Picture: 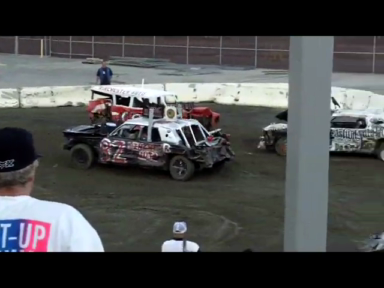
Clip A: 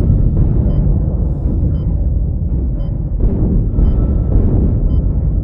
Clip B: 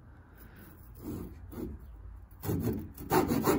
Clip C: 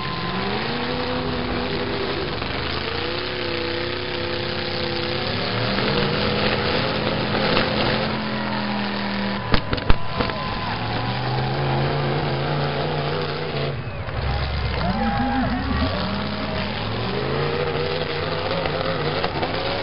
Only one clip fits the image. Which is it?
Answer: C